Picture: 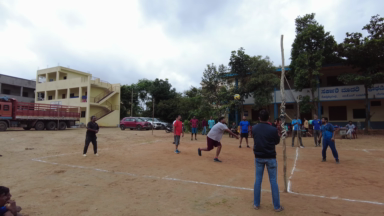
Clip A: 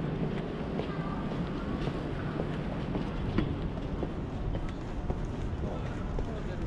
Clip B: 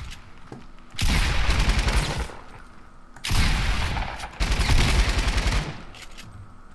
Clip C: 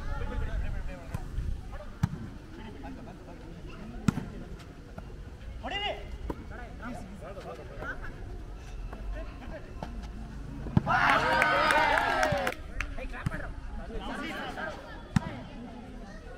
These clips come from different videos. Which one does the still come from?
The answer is C